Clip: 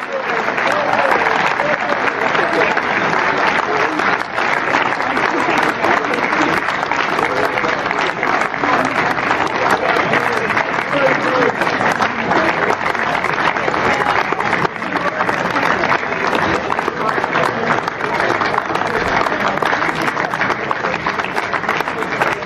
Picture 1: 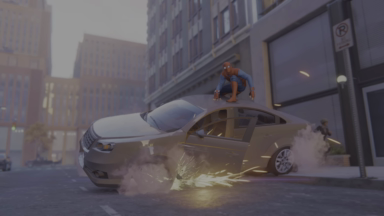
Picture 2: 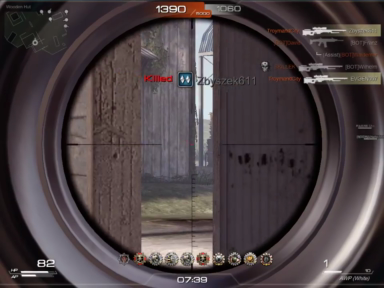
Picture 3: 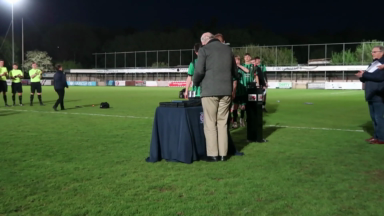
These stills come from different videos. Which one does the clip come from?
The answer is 3